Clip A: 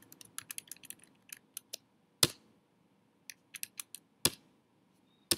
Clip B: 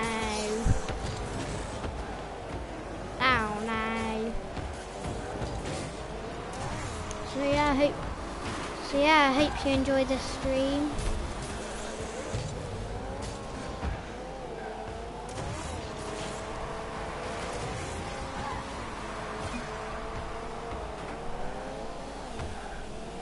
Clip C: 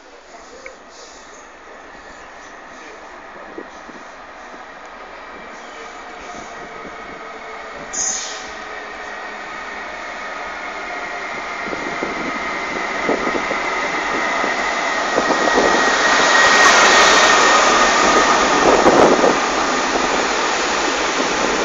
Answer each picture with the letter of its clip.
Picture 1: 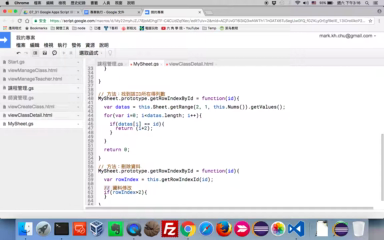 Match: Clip A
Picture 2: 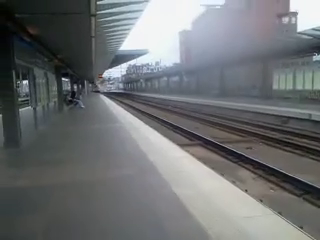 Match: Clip C